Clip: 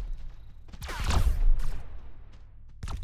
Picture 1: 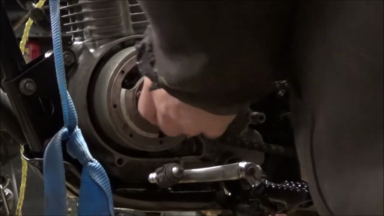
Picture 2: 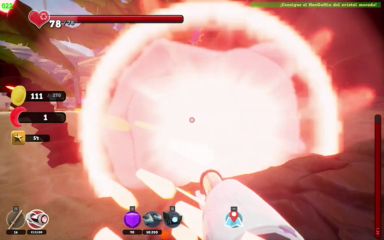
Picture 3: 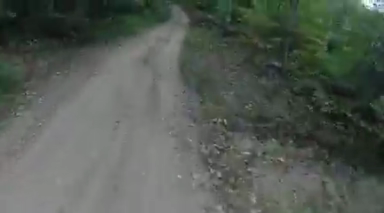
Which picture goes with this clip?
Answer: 2